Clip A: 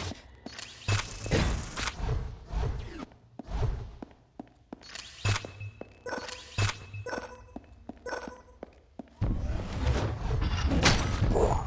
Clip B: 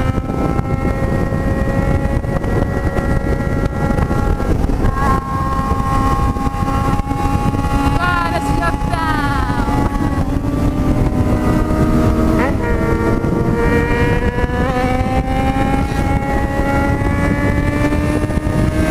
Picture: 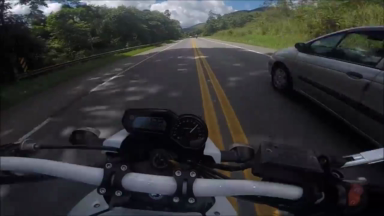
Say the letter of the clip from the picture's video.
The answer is B